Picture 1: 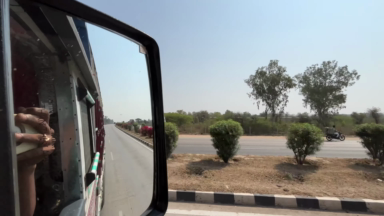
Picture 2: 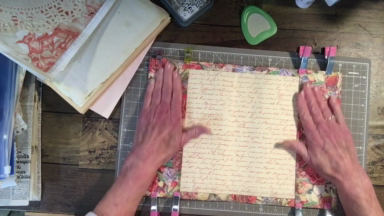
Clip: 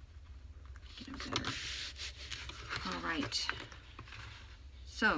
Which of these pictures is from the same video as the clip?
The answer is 2